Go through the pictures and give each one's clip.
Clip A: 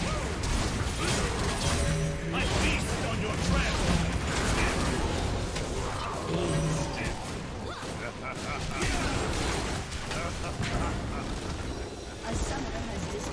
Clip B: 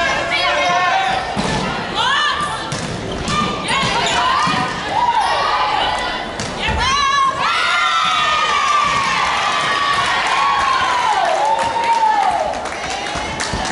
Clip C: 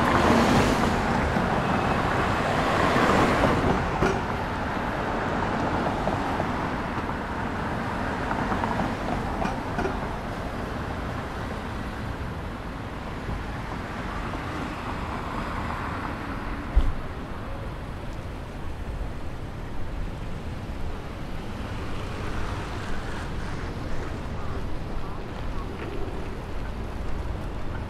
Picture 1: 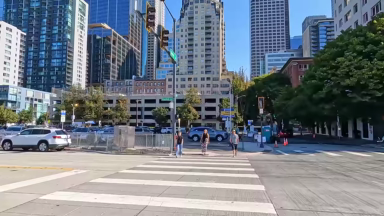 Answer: C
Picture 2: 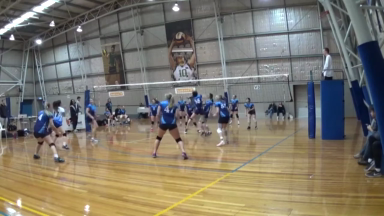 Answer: B